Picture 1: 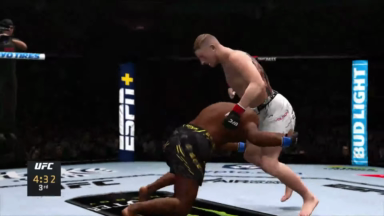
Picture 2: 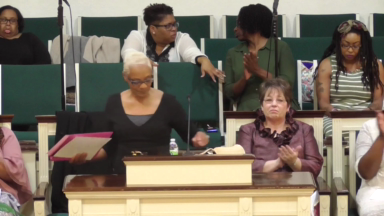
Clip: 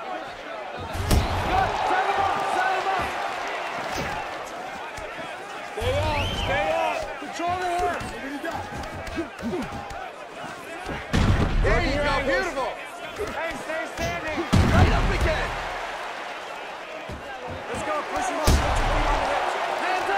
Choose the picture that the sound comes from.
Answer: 1